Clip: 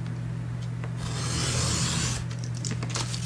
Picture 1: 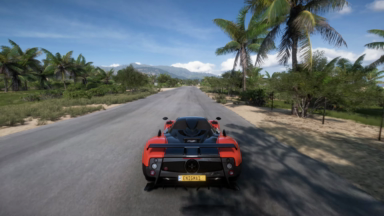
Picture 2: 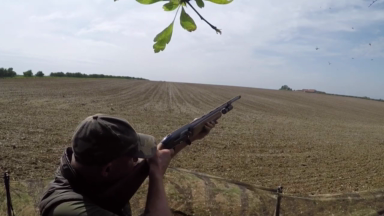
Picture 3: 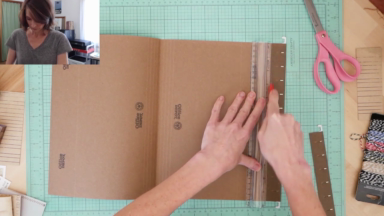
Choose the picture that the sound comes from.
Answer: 3